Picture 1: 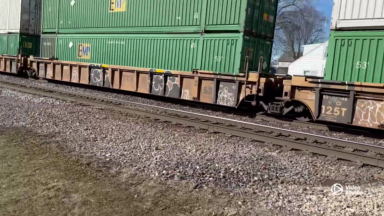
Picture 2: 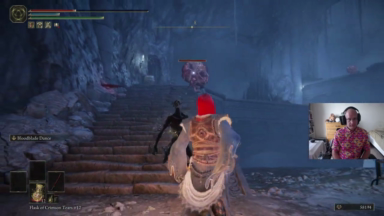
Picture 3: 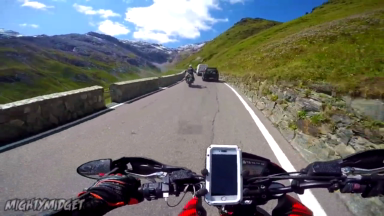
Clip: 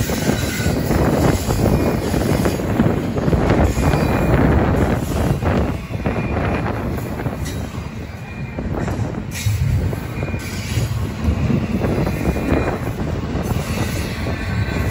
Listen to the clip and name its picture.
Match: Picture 1